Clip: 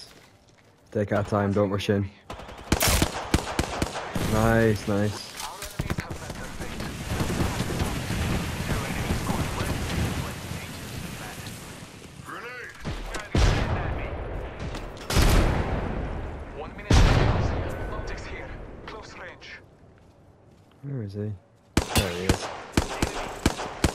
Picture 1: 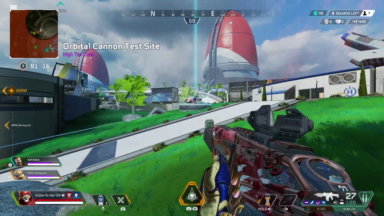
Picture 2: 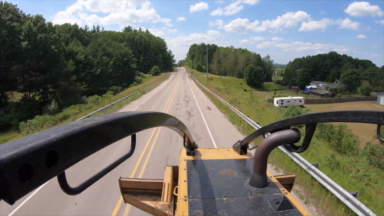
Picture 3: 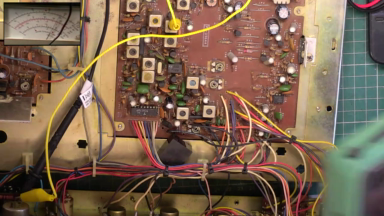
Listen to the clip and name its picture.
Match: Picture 1